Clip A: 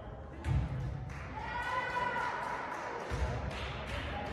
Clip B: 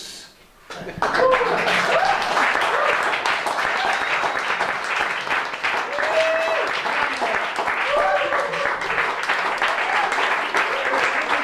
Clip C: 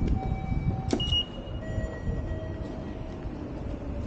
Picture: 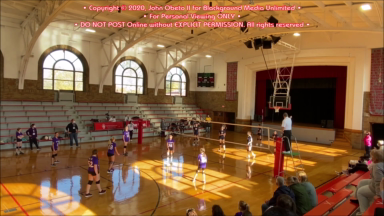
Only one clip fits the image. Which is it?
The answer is A